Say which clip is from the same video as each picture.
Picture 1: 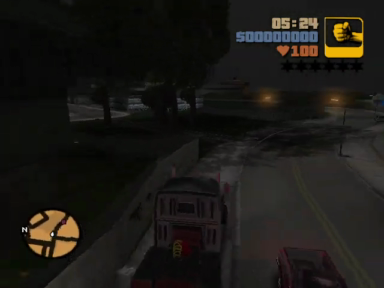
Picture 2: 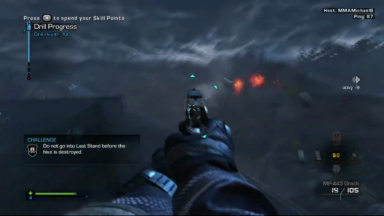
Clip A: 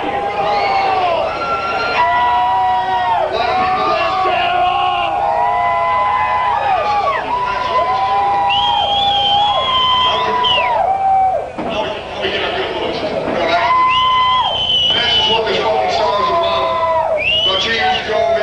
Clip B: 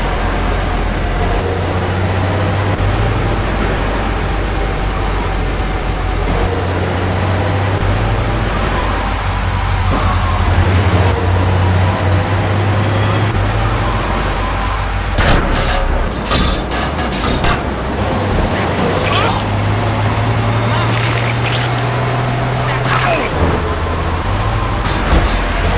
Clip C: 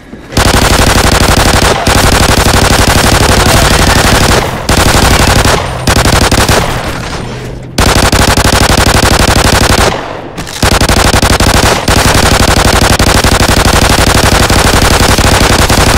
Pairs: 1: B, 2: C